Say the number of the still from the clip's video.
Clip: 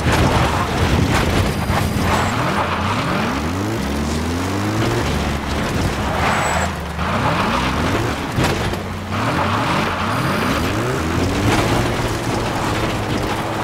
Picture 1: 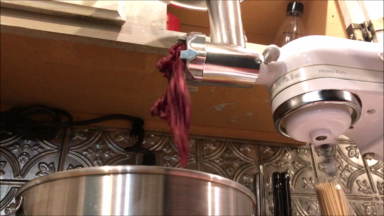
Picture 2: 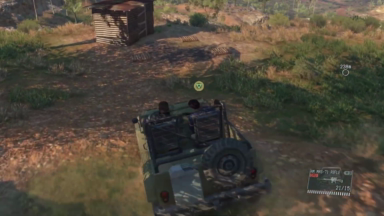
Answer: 2